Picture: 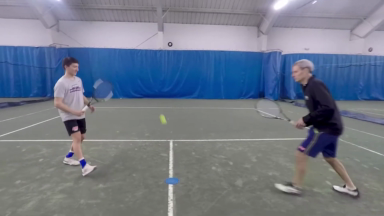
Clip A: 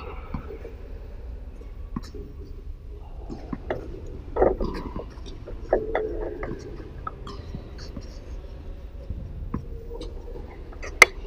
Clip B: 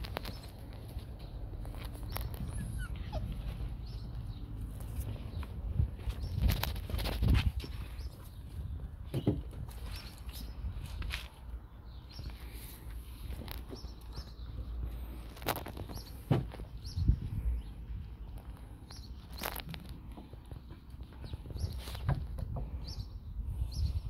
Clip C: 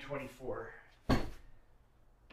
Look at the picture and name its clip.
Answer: A